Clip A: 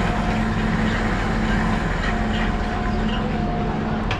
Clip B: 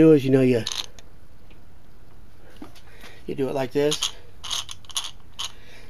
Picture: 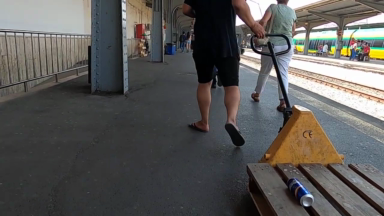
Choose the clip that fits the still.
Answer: A